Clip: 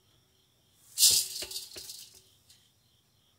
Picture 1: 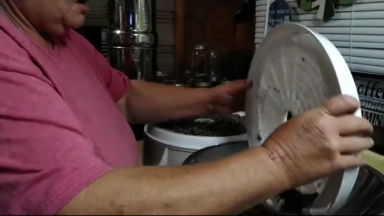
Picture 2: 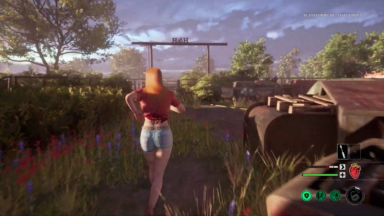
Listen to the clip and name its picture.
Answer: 1